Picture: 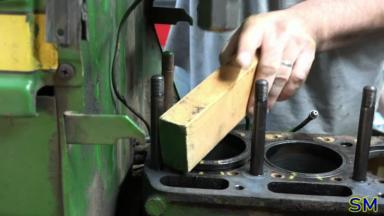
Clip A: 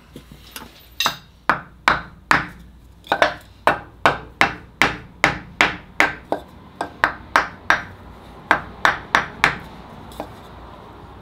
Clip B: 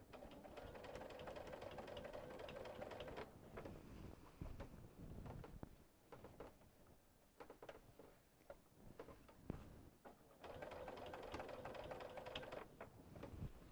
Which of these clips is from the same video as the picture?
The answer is A